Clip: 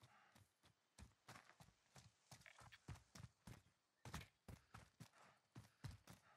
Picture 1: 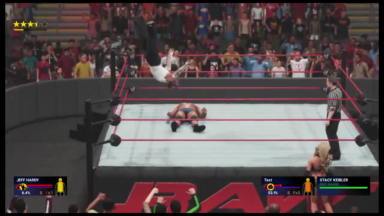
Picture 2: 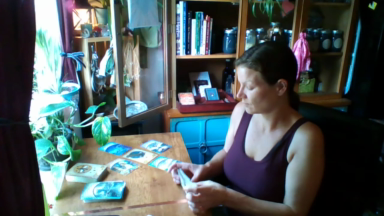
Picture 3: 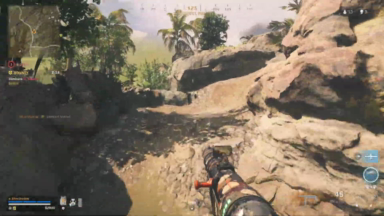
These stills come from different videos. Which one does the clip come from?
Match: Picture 3